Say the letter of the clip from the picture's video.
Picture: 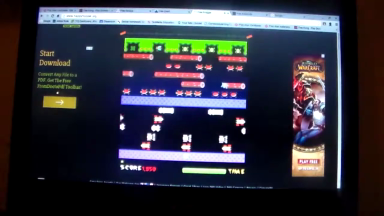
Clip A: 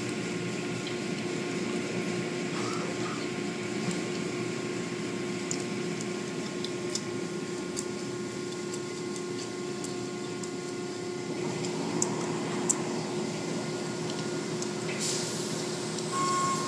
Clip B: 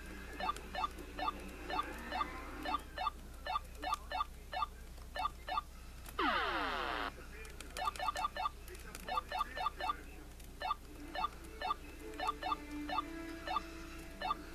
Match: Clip B